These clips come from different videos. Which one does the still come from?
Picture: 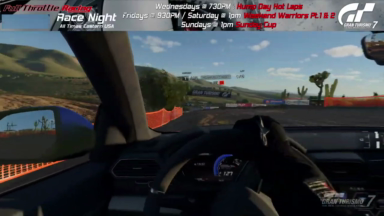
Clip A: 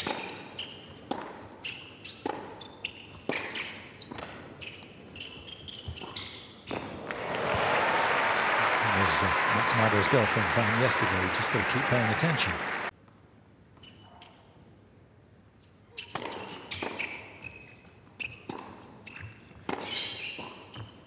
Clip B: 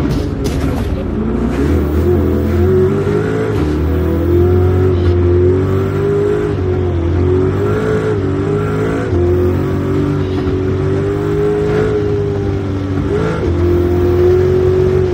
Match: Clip B